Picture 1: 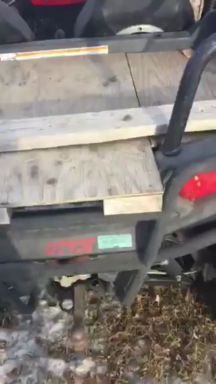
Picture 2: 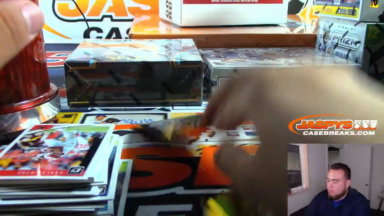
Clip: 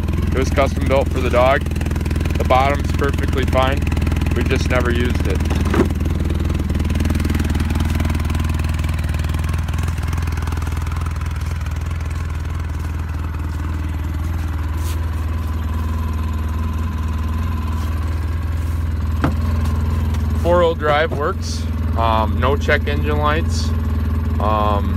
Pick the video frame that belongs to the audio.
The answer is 1